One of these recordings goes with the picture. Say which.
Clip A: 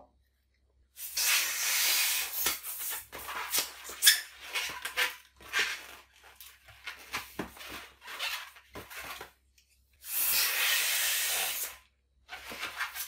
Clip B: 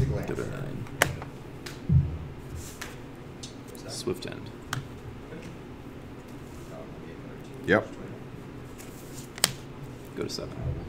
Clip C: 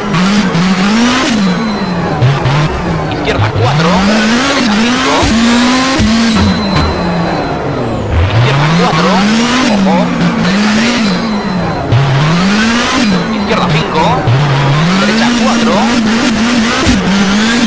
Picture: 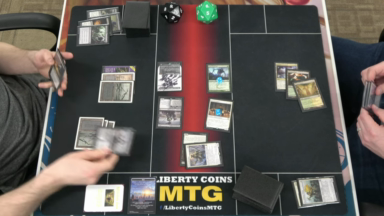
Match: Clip B